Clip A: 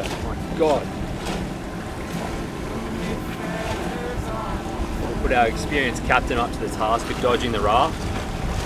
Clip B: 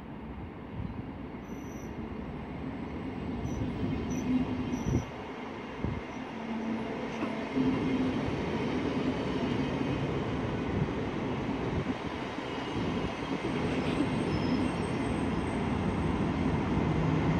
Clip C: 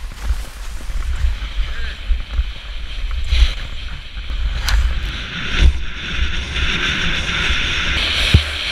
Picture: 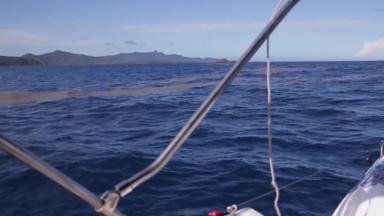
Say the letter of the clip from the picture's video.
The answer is A